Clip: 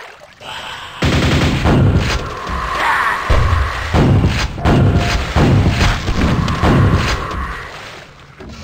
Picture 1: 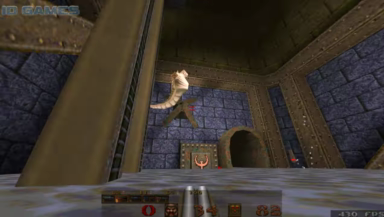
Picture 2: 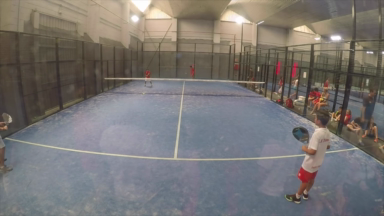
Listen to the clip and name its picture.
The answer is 1